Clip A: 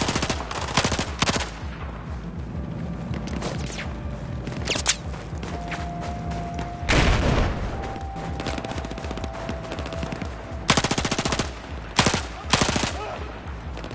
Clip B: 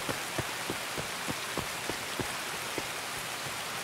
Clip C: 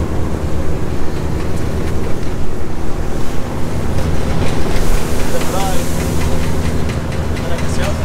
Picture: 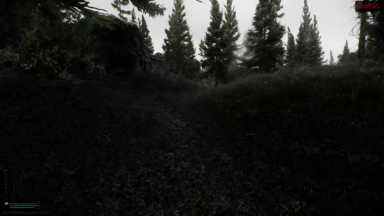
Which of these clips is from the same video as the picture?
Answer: B